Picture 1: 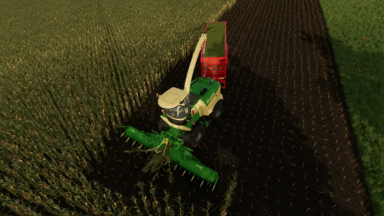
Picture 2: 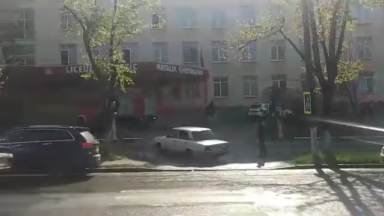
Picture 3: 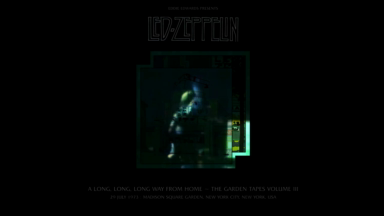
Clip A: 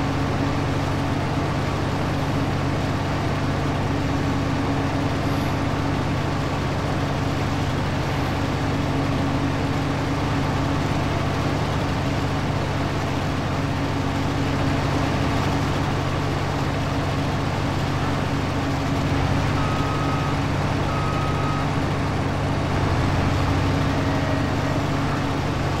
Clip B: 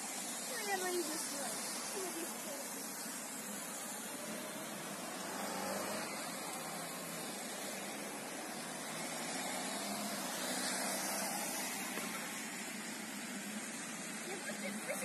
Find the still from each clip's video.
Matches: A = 1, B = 2